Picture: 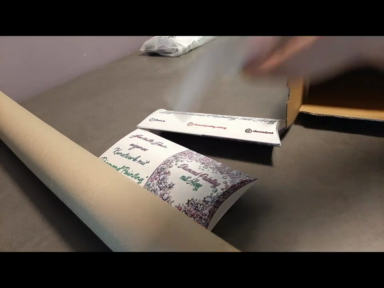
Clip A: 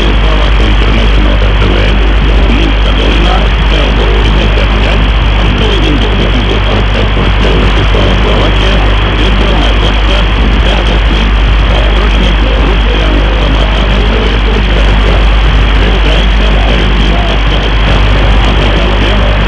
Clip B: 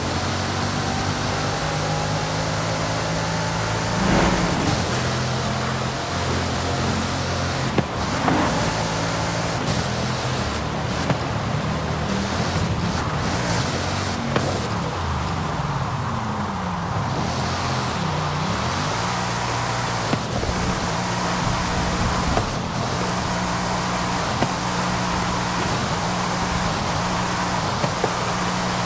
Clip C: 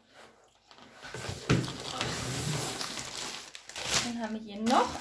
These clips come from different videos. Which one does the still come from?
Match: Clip C